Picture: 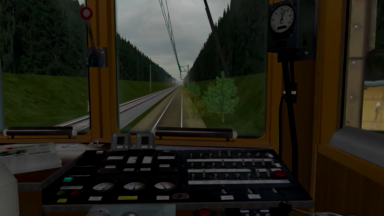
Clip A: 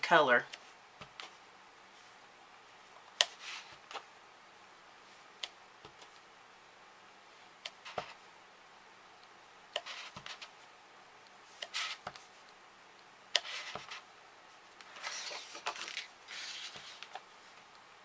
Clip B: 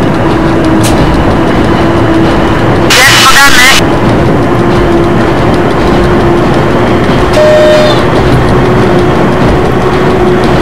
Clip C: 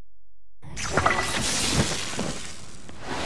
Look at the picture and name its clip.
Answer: B